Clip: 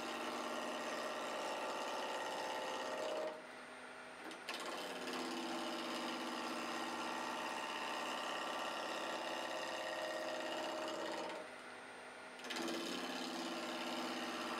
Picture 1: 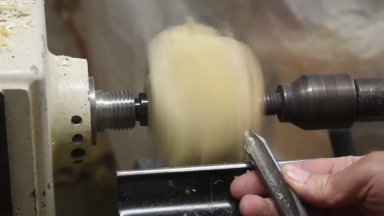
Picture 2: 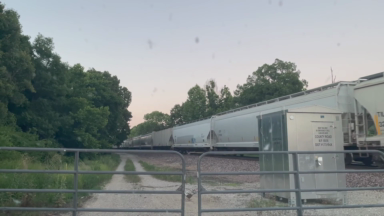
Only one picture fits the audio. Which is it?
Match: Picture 1